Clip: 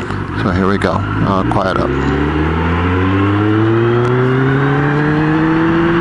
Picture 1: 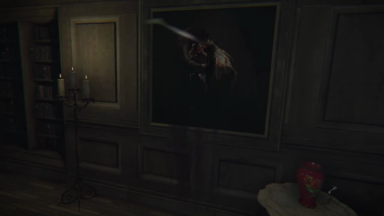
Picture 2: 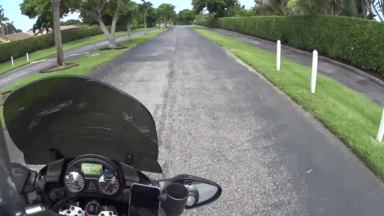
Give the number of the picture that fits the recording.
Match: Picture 2